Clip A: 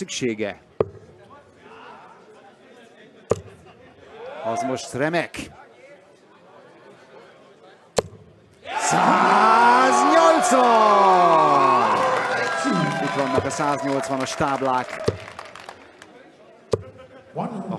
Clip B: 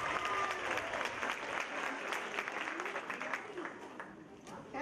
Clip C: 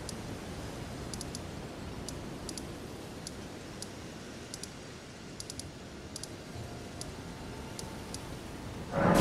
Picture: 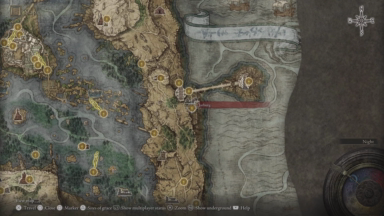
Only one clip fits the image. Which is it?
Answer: C